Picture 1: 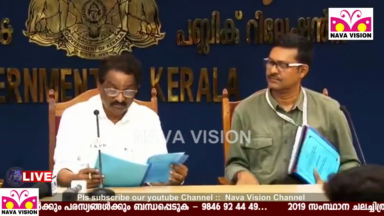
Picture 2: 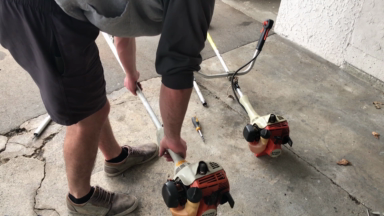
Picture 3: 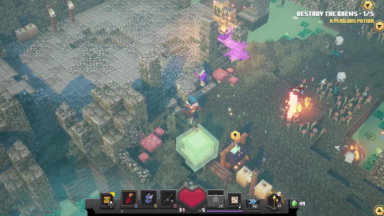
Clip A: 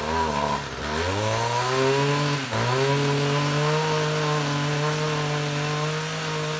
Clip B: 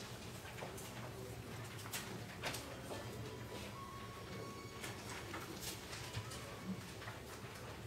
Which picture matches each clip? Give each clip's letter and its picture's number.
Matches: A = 2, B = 1